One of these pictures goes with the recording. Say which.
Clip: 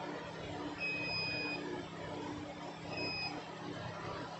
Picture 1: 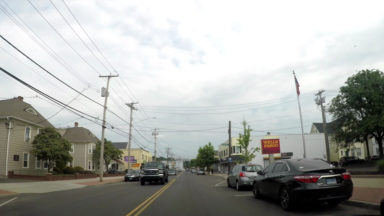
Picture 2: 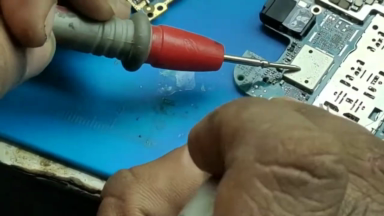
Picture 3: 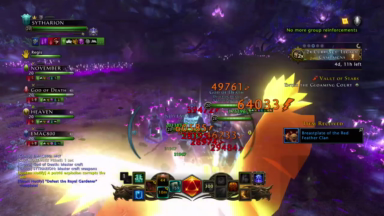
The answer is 2